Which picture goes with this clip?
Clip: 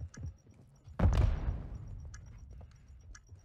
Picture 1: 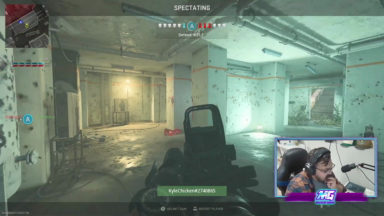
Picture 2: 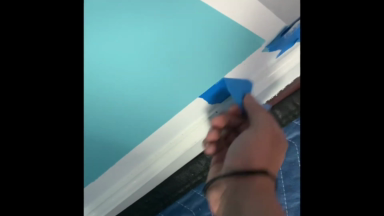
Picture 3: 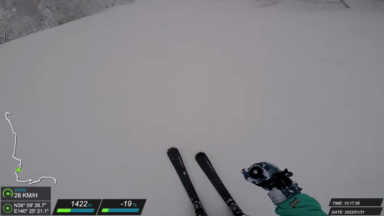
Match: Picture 1